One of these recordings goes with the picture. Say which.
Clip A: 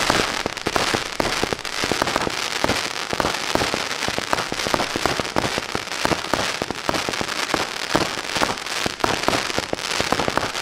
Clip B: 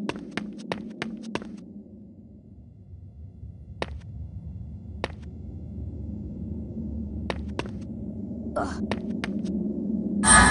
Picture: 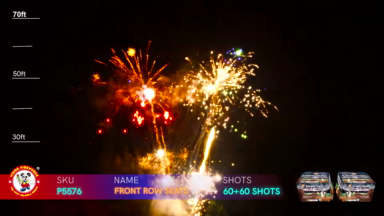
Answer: A